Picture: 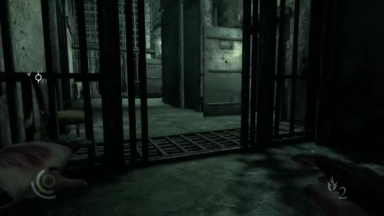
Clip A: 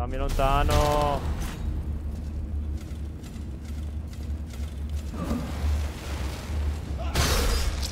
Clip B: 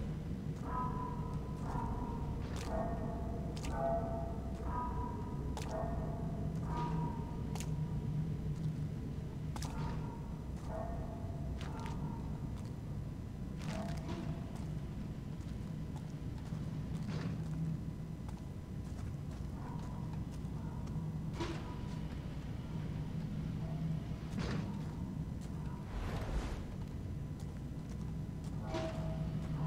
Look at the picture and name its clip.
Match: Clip B